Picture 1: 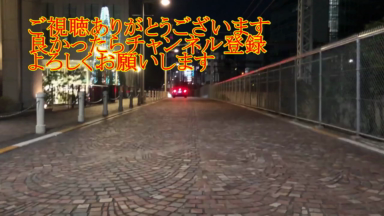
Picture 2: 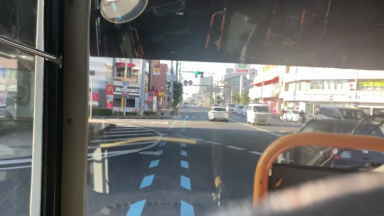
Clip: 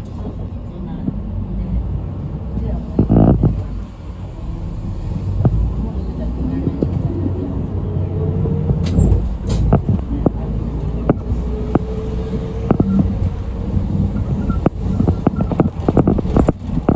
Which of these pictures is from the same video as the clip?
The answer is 2